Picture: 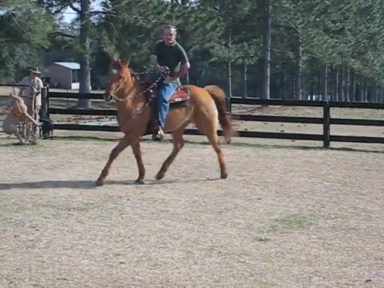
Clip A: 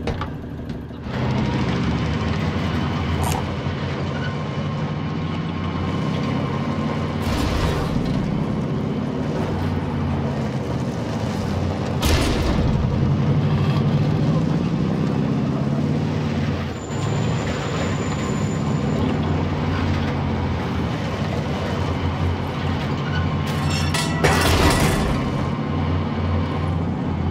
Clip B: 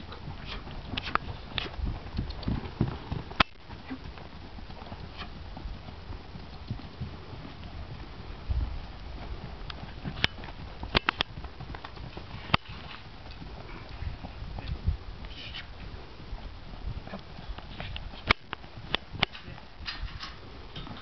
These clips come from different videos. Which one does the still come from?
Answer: B